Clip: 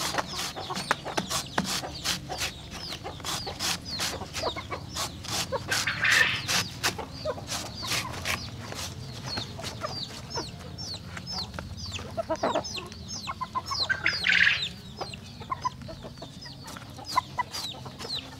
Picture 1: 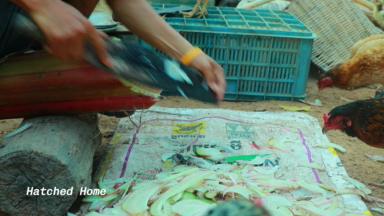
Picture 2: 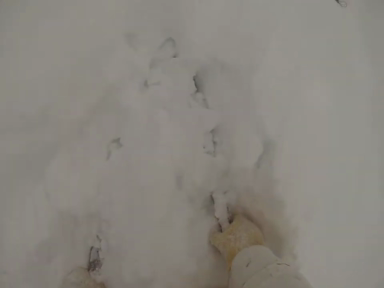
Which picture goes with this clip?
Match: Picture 1